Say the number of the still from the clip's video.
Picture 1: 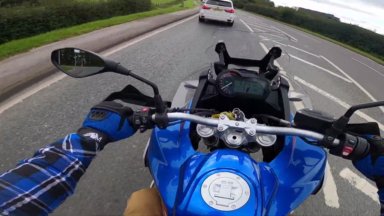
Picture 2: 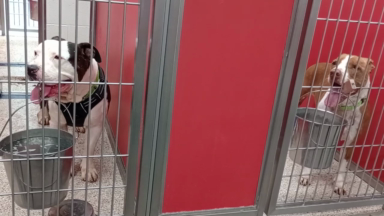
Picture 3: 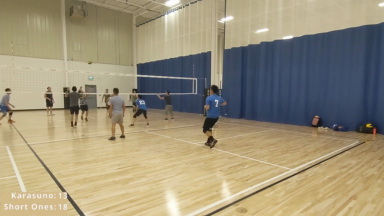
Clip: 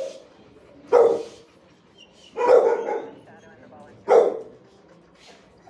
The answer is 2